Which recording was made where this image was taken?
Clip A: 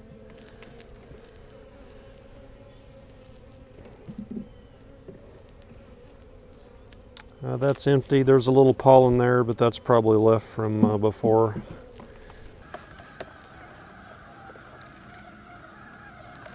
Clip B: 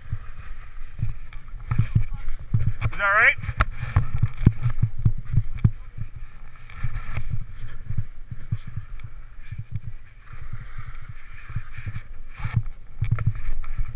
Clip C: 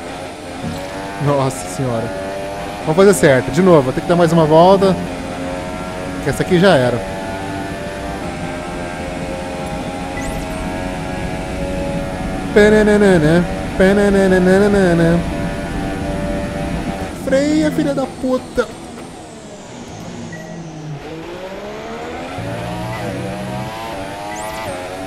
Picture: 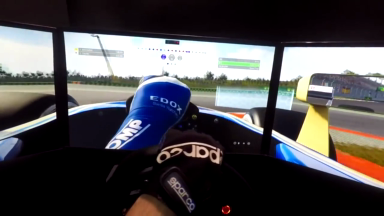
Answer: C